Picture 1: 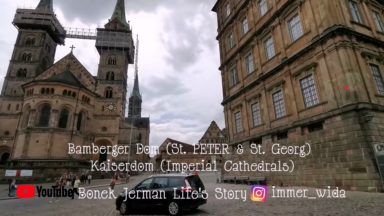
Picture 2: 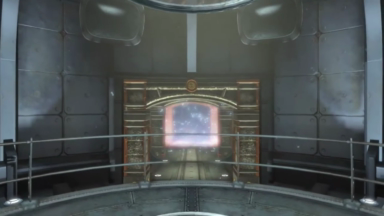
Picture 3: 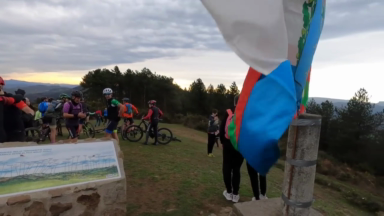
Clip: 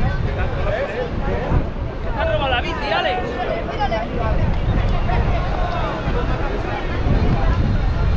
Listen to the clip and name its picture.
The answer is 3